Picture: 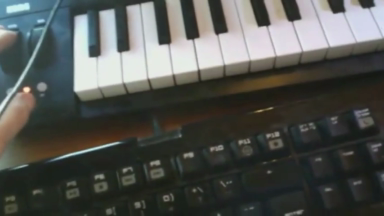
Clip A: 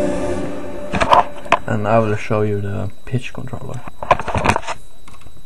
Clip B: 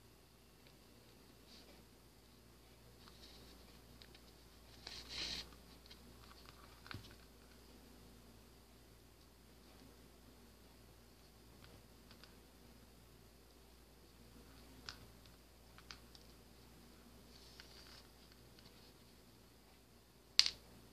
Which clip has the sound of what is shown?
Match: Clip A